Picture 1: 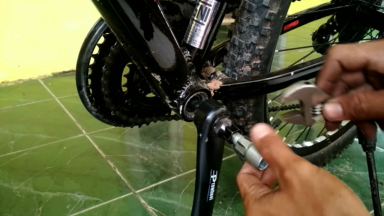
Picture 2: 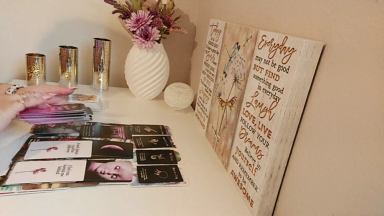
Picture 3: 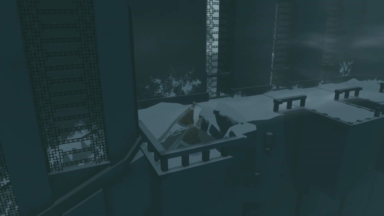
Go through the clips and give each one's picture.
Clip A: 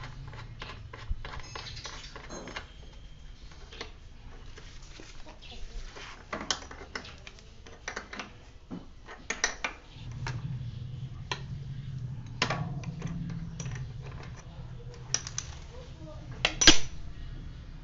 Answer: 1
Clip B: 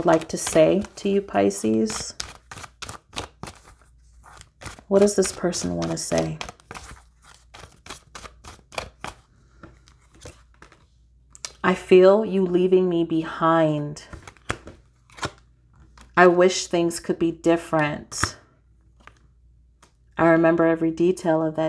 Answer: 2